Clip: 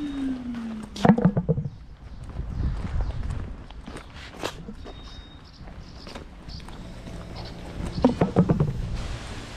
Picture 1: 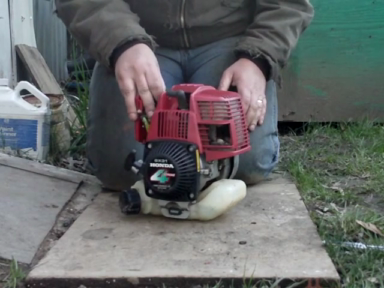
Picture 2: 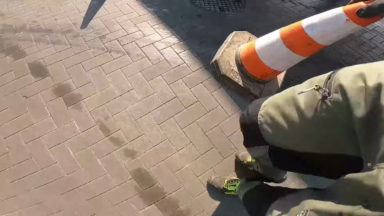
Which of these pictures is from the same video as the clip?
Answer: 2